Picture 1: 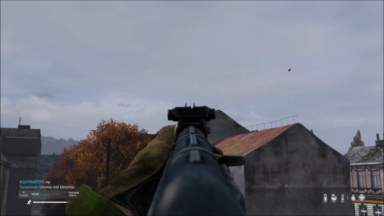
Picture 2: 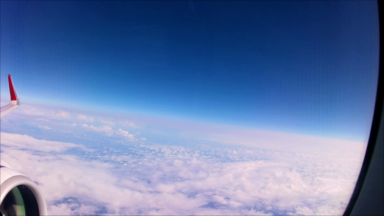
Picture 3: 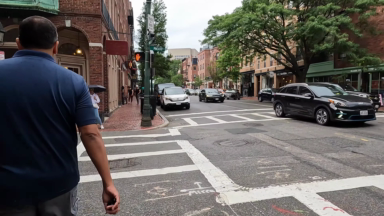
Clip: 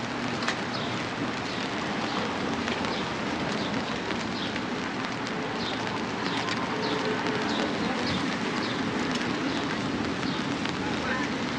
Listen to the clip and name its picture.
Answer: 3